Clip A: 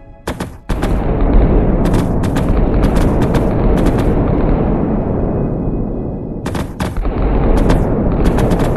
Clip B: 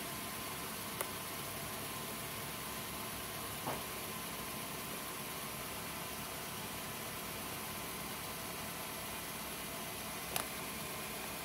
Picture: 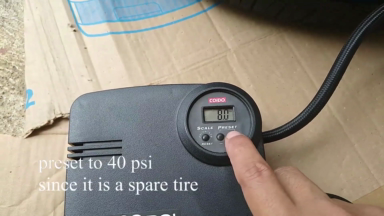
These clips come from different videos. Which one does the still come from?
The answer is B